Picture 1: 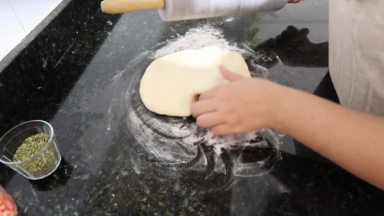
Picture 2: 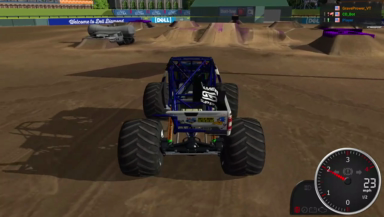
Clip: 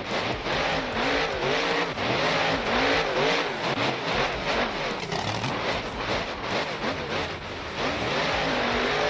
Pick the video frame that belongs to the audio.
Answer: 2